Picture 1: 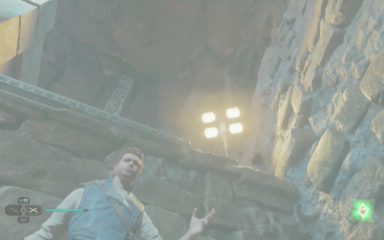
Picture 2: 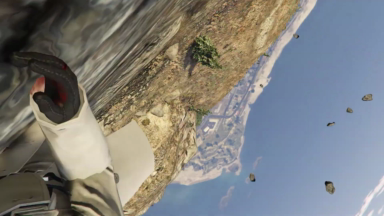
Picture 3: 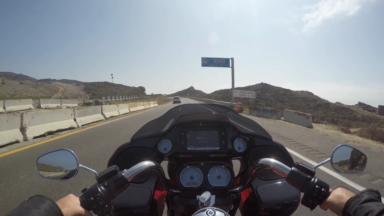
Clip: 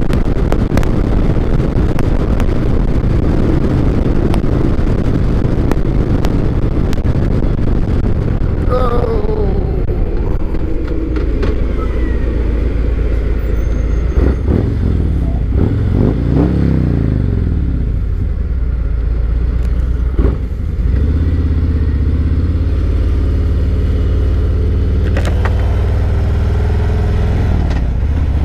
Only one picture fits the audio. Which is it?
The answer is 3